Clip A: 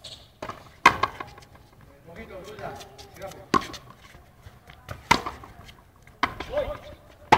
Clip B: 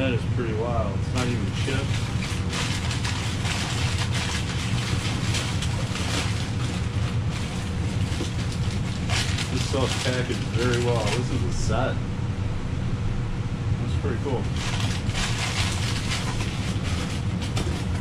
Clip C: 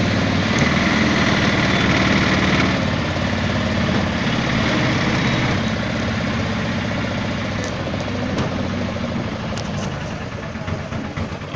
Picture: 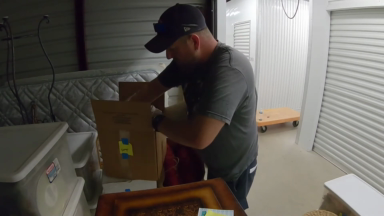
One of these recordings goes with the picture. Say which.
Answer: B